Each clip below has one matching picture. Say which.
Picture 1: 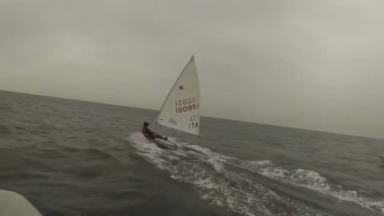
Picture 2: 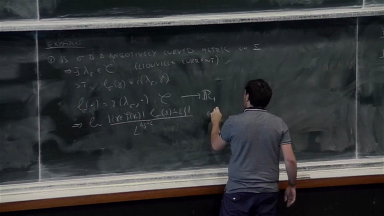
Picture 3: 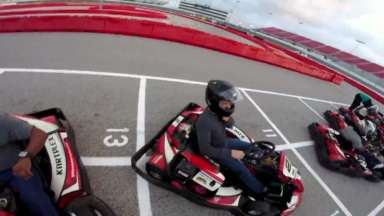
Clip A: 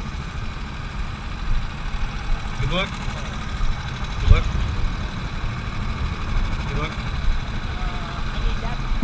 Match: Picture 3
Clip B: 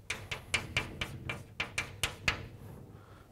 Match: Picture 2